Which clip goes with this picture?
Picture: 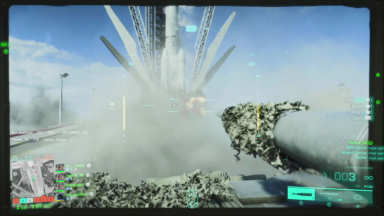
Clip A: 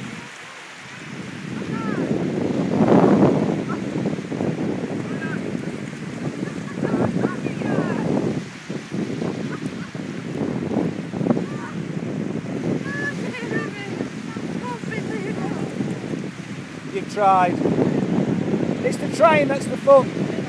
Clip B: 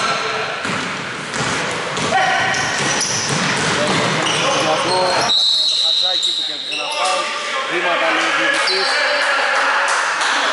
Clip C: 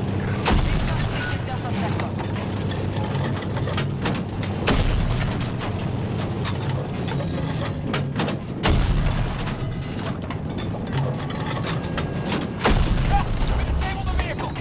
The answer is C